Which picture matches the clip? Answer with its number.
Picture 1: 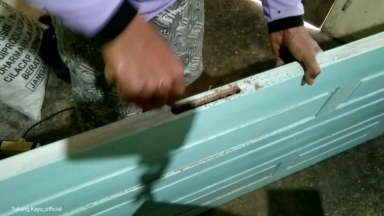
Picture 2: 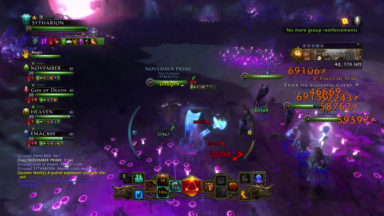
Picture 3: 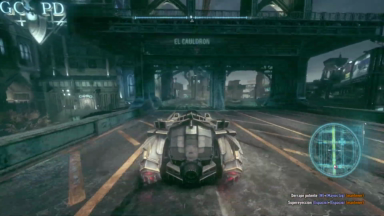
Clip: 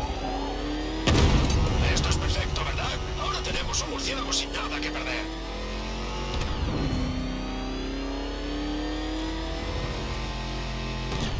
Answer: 3